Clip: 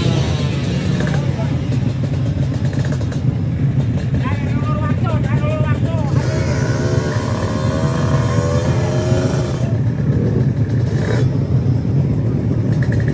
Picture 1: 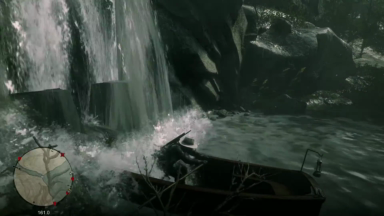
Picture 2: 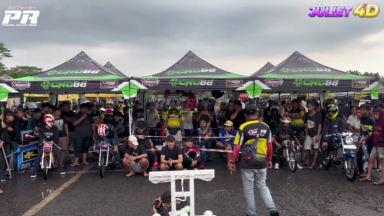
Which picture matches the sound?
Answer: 2